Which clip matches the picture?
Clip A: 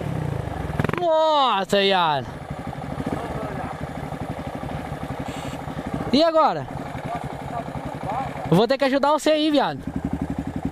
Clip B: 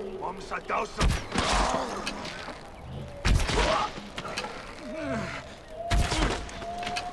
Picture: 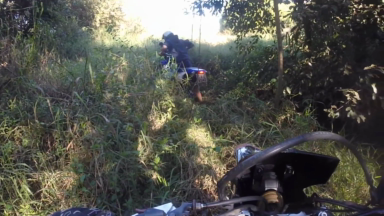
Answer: A